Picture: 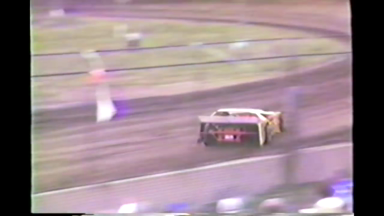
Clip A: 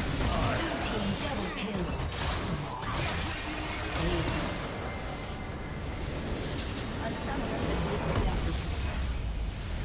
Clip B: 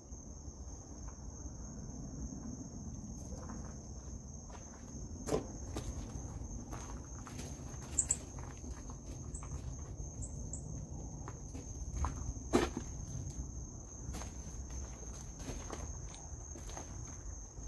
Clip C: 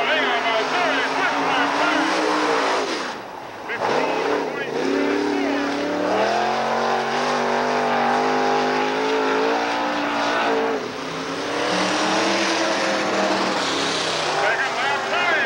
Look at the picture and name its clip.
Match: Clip C